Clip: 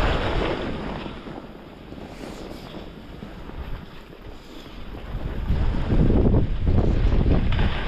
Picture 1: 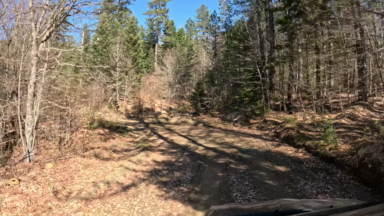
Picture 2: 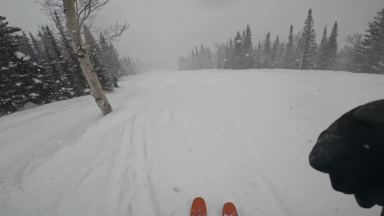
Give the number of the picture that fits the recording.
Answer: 2